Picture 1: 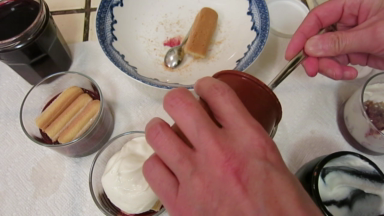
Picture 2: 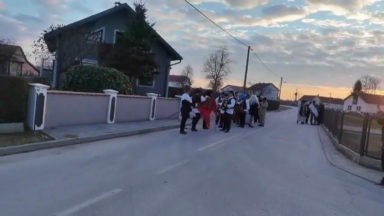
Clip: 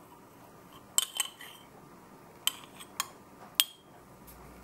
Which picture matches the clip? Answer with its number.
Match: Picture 1